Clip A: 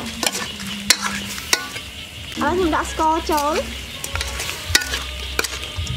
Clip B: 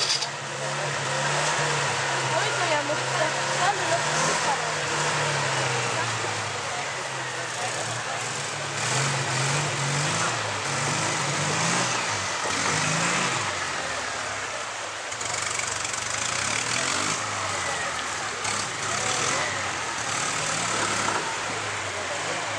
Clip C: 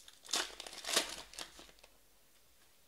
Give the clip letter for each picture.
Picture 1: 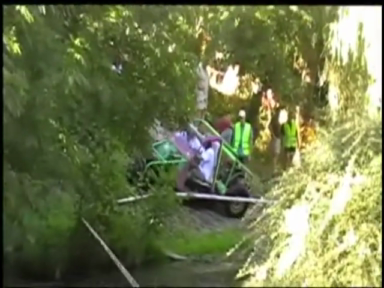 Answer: B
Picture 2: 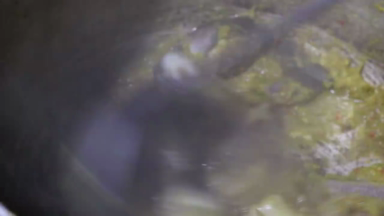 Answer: A